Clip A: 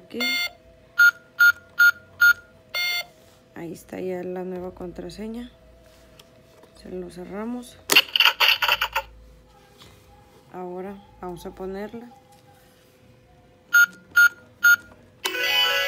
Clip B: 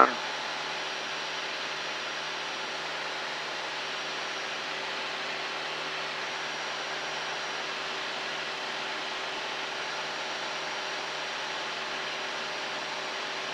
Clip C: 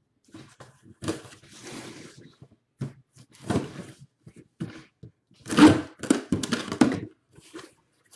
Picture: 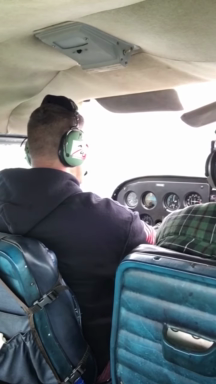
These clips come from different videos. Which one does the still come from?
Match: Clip B